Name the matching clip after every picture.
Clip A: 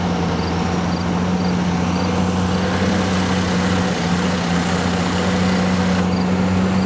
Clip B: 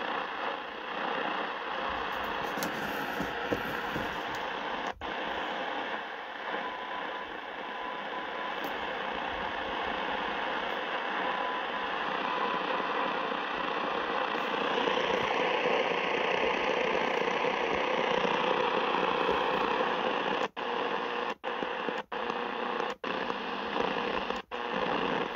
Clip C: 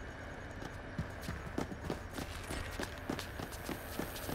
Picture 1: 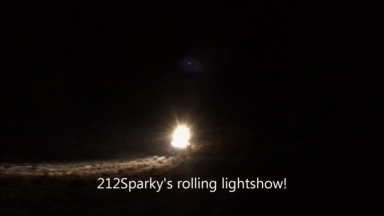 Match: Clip A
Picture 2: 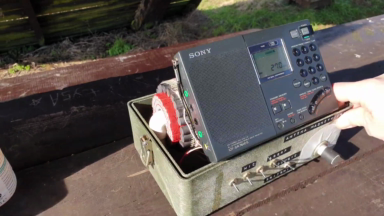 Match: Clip B